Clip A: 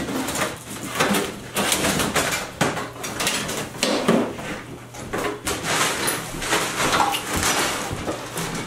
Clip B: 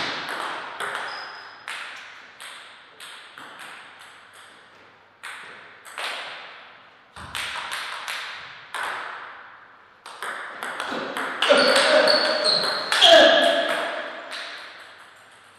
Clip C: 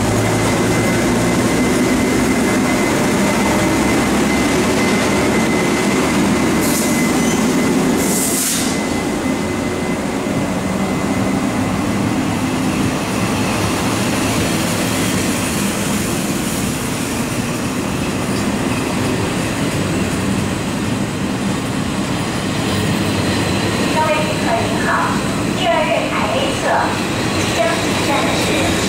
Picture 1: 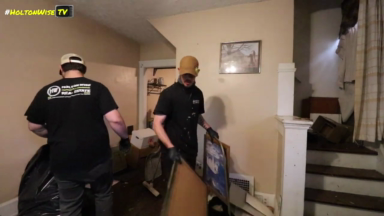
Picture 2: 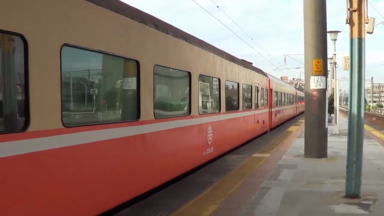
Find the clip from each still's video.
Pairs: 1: A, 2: C